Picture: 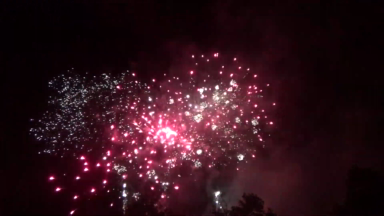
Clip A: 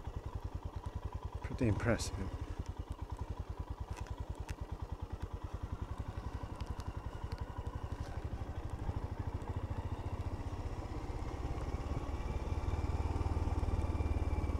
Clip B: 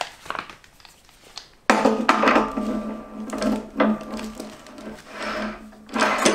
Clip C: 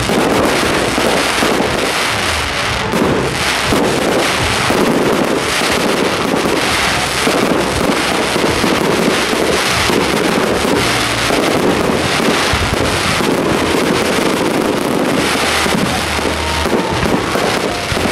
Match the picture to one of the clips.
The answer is C